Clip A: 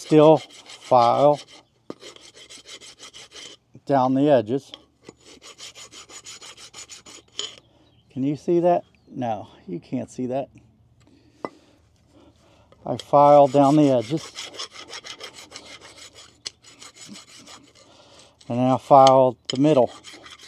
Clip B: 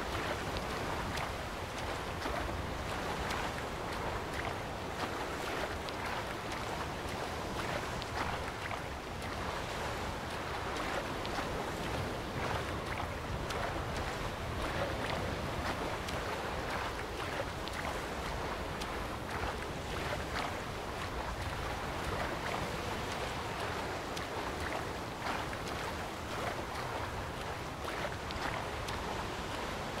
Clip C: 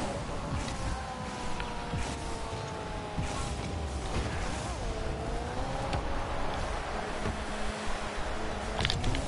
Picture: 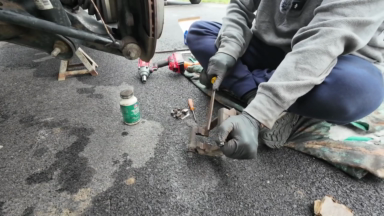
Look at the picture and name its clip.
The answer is A